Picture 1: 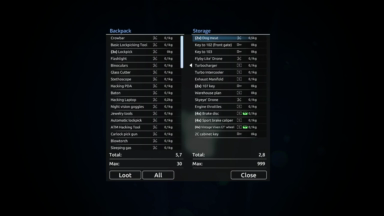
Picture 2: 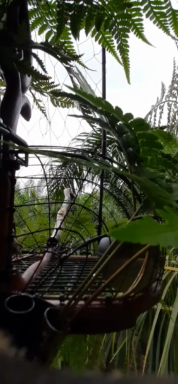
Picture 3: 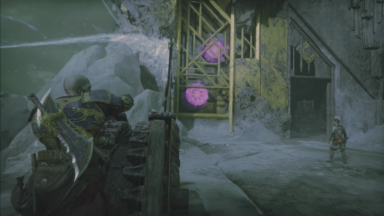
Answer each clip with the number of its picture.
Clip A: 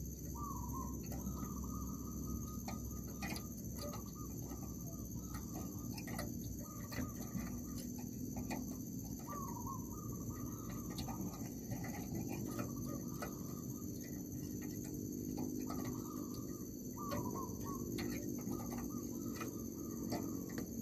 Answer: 2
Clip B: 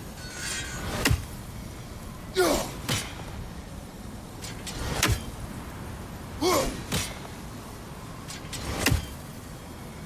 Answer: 3